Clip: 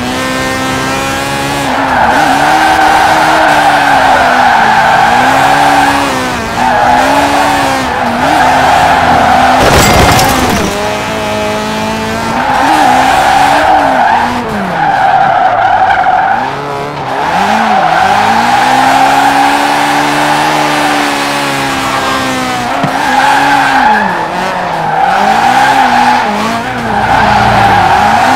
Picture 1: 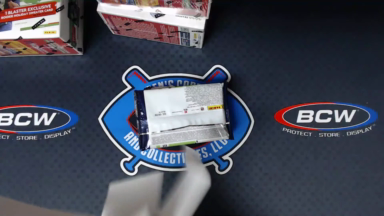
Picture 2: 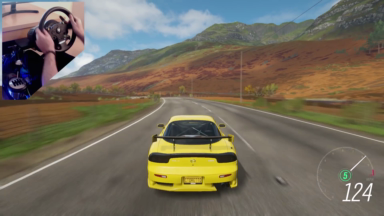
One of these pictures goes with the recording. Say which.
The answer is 2